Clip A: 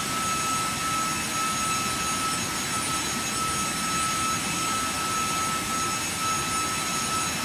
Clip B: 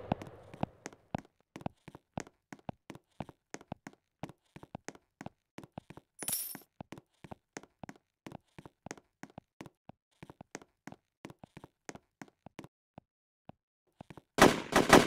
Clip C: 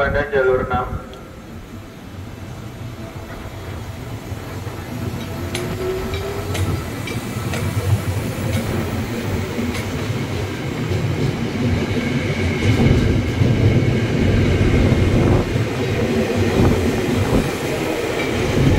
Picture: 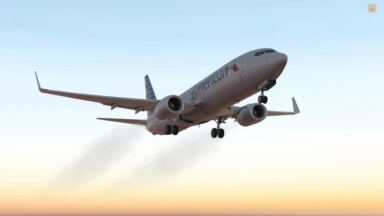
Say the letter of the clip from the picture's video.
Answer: A